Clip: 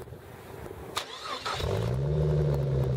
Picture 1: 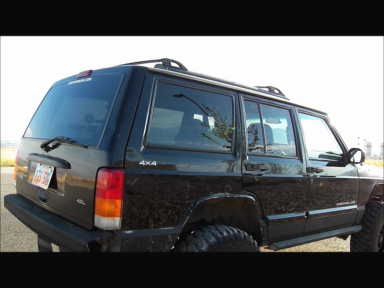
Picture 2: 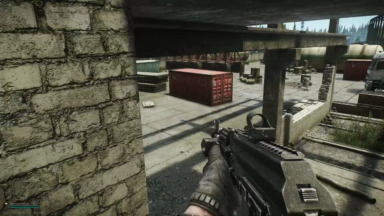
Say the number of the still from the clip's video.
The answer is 1